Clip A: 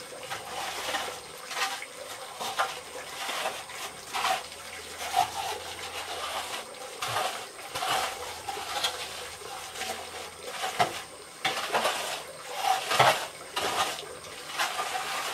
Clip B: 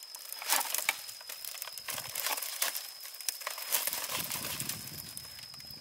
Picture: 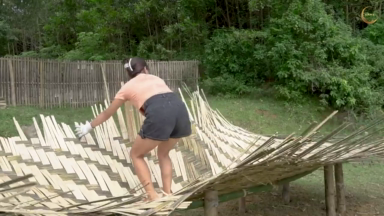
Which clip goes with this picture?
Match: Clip B